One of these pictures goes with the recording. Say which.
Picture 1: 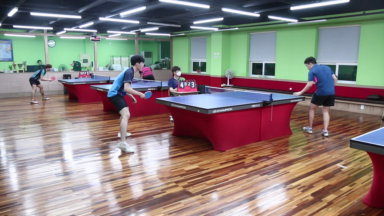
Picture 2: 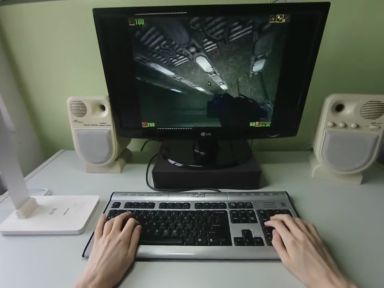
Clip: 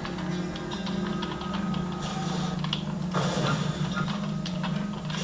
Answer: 2